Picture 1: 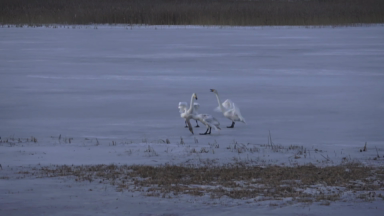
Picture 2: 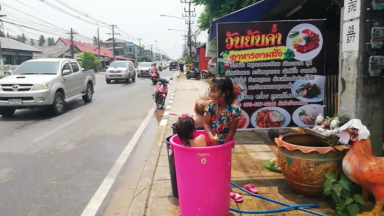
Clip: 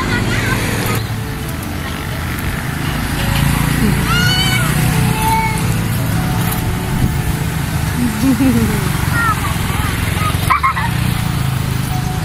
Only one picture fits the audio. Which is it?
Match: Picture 2